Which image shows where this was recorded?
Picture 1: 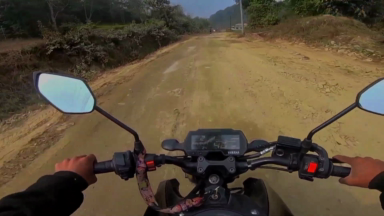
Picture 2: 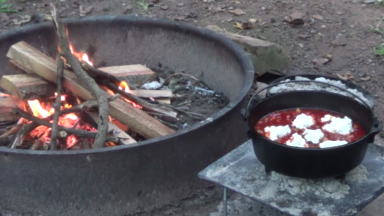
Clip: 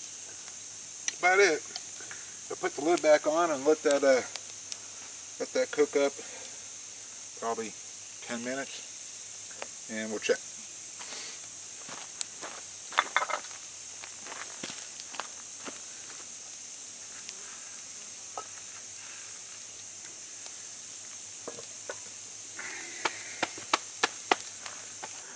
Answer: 2